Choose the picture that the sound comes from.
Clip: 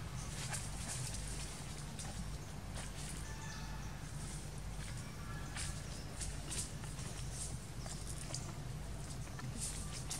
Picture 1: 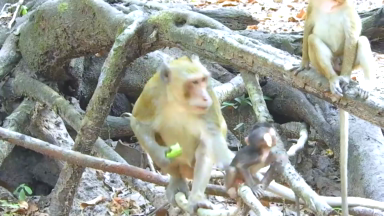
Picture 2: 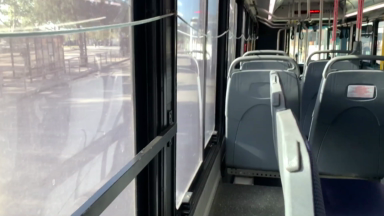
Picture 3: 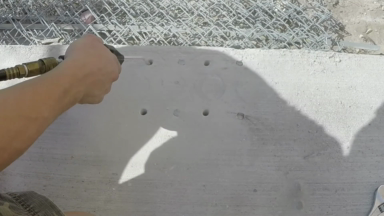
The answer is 1